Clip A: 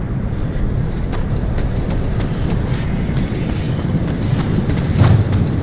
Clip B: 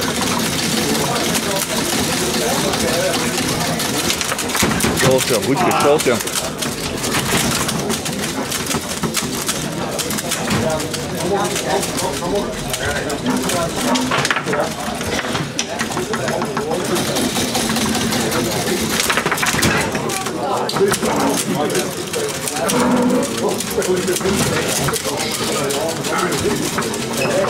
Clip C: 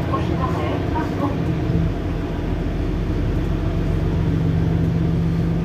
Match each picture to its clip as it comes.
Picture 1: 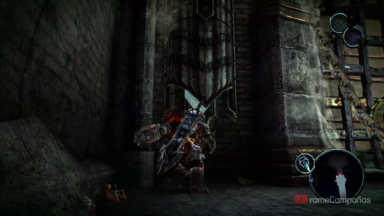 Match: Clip A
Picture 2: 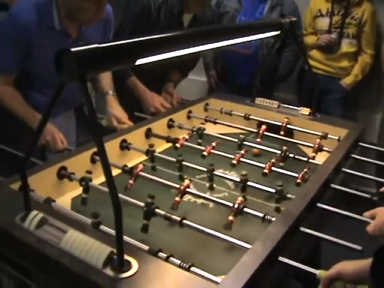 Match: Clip B